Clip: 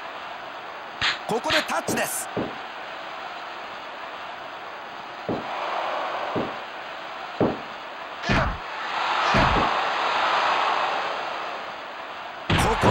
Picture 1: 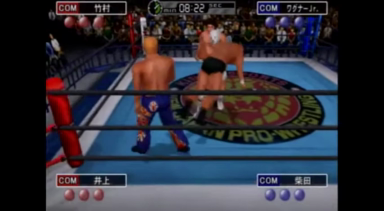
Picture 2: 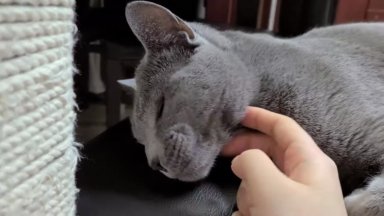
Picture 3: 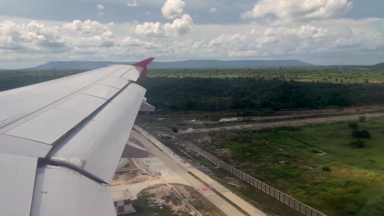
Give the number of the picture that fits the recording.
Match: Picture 1